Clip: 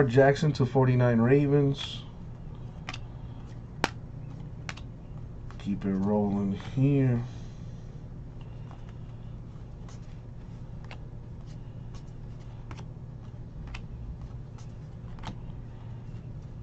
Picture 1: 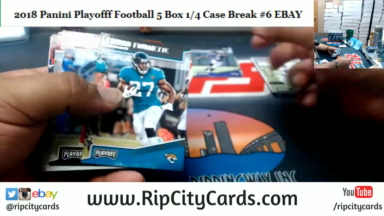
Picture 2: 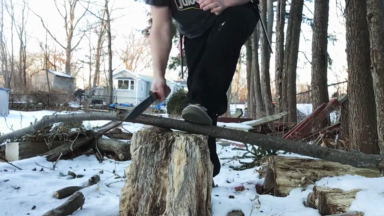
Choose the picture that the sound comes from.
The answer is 1